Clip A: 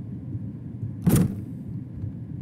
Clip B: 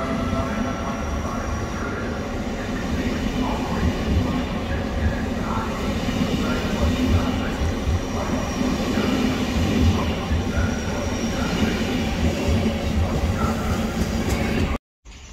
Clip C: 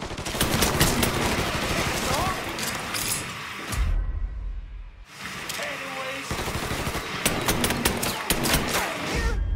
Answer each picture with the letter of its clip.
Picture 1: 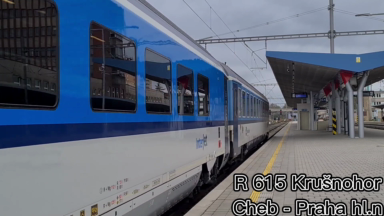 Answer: B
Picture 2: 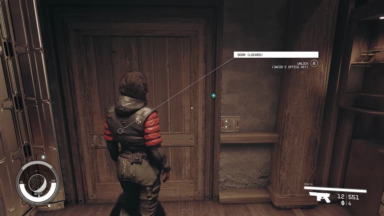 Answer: A